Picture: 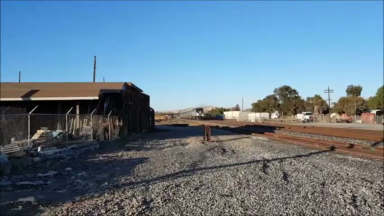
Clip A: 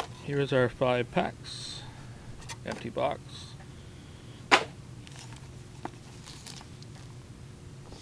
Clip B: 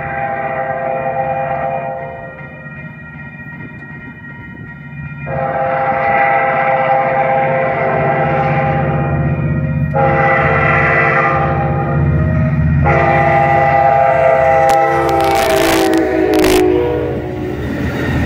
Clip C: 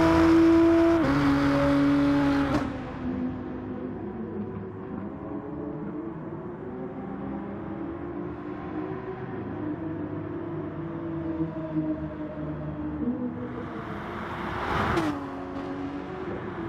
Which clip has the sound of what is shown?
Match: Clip B